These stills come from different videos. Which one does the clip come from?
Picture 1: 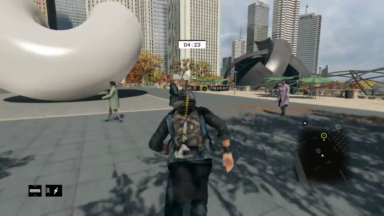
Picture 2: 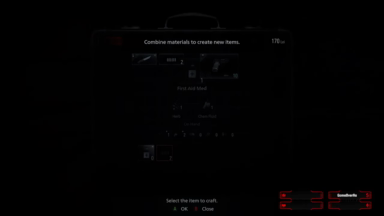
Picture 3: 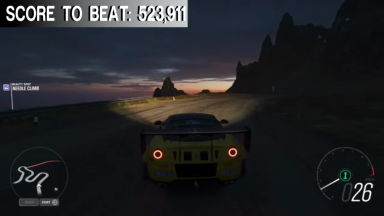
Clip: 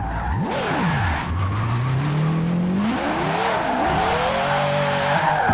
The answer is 3